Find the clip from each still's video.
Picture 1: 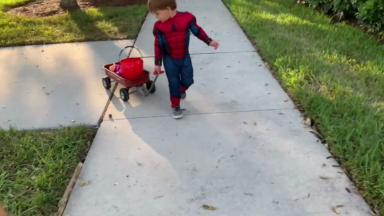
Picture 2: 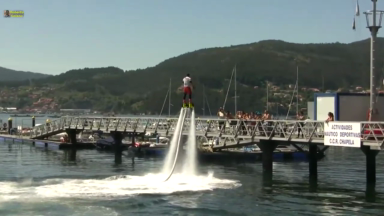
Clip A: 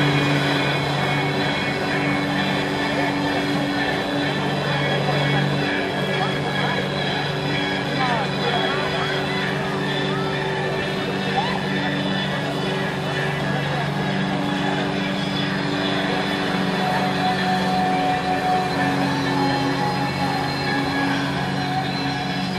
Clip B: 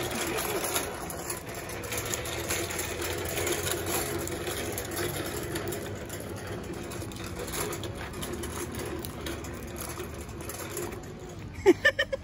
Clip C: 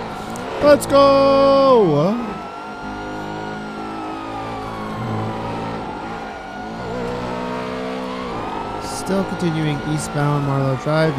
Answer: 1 B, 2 A